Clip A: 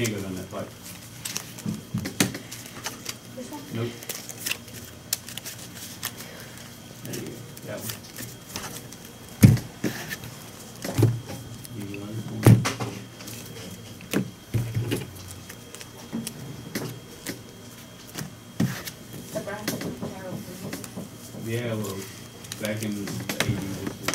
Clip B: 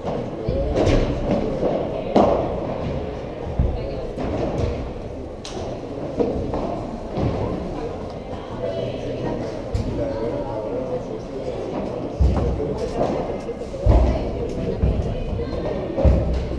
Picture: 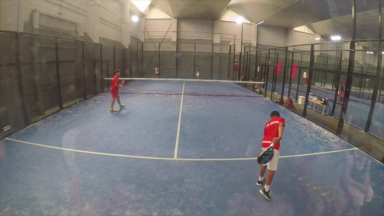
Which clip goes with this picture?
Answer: B